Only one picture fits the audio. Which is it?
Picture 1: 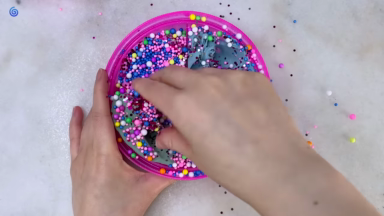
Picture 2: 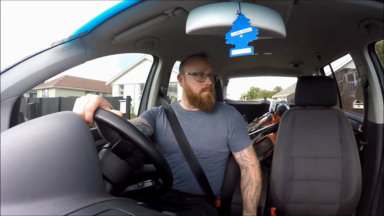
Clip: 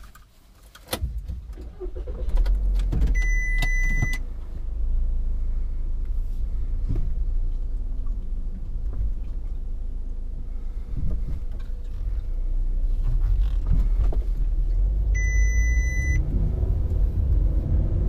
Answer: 2